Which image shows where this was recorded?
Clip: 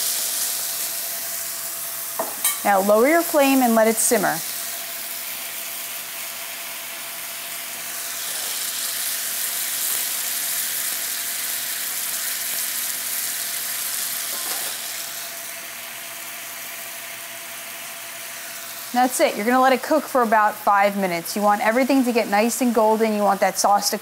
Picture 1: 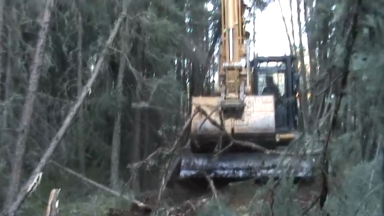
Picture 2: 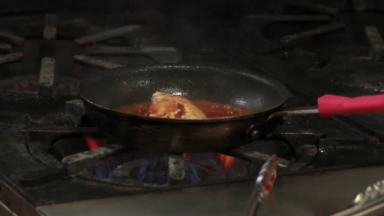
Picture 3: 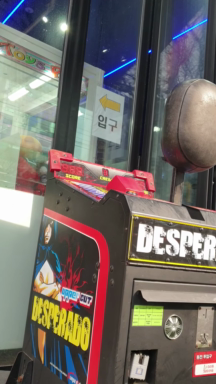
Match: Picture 2